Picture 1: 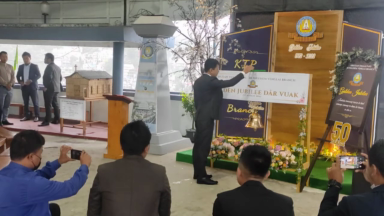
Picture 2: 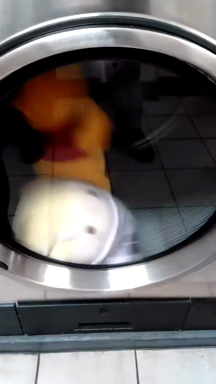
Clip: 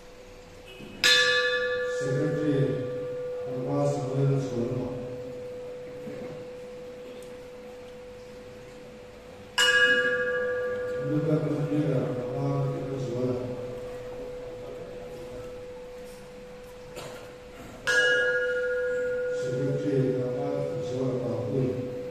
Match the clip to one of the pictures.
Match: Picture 1